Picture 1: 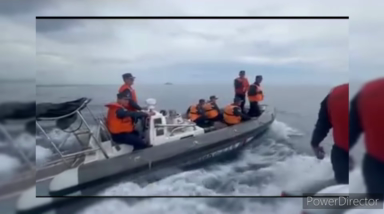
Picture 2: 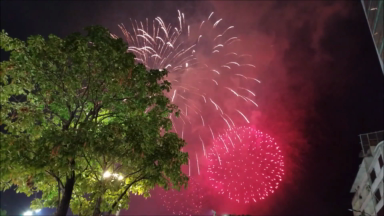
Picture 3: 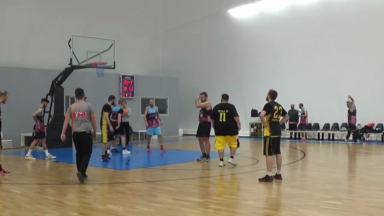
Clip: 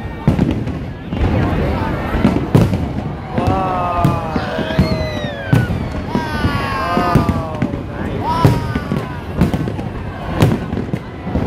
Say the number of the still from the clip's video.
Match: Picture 2